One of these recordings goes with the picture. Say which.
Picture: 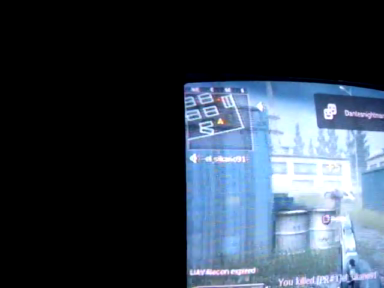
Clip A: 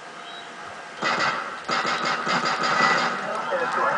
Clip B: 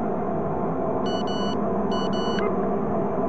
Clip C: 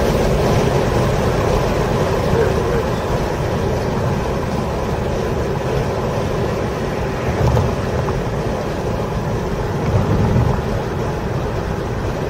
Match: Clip A